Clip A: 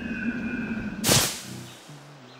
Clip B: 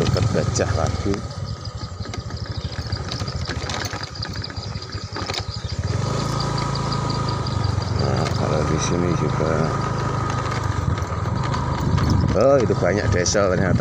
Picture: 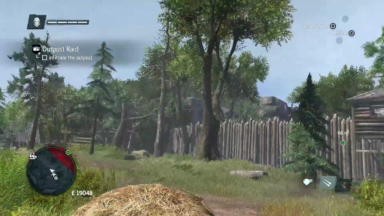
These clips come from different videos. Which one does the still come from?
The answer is A